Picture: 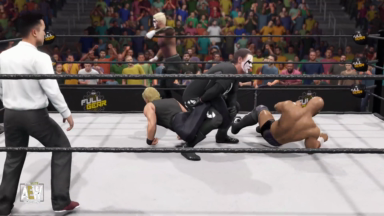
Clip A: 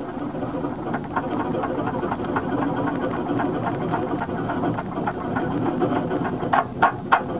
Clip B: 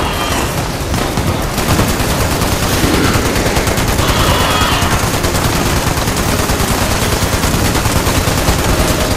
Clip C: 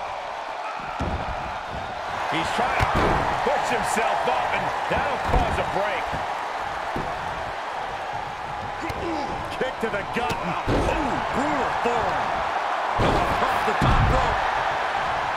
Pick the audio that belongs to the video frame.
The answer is C